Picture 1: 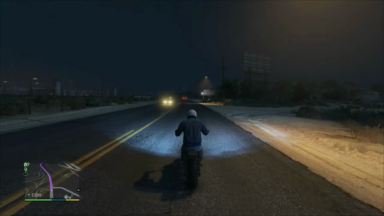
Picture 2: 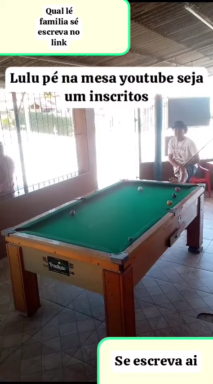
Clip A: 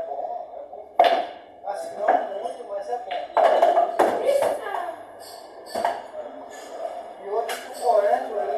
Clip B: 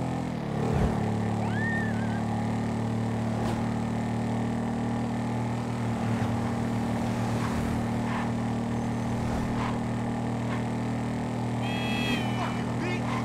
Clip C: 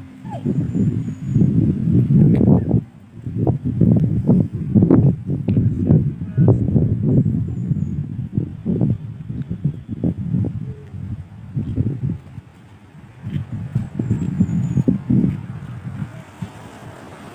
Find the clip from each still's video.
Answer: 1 B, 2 A